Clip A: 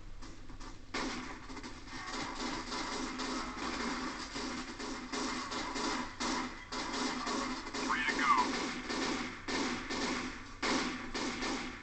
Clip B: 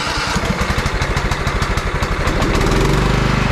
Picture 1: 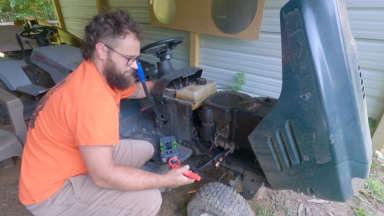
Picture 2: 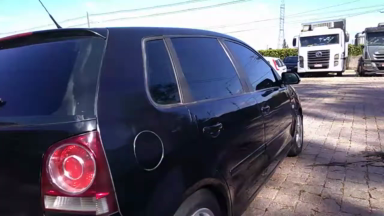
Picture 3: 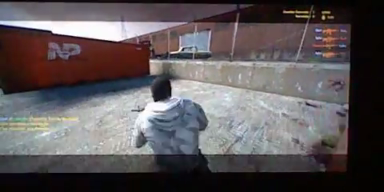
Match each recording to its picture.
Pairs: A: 3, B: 1